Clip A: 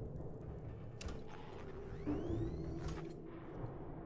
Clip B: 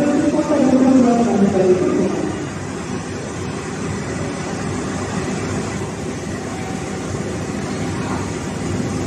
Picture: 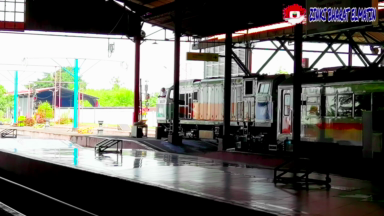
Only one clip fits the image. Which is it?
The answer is B